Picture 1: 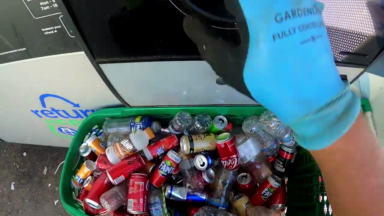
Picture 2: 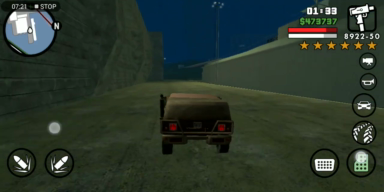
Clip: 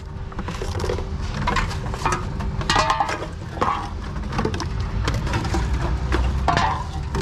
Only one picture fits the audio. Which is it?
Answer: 1